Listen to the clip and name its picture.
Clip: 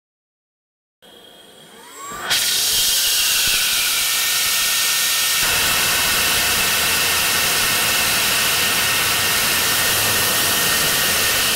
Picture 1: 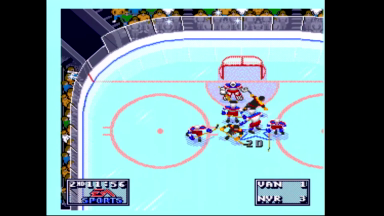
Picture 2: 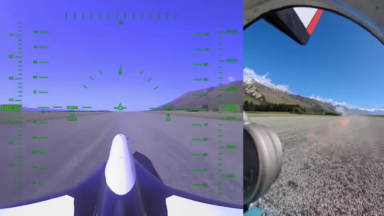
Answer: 2